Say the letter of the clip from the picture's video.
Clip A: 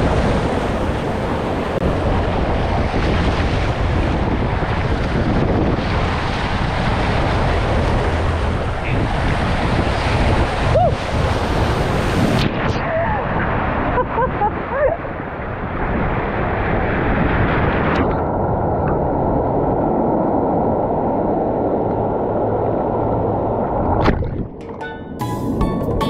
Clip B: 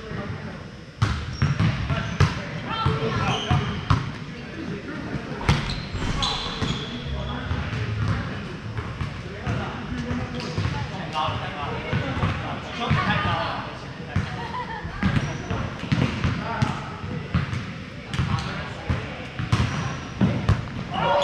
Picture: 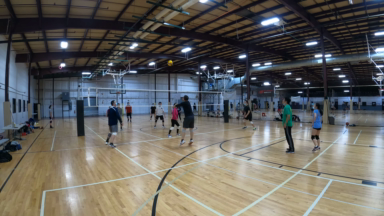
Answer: B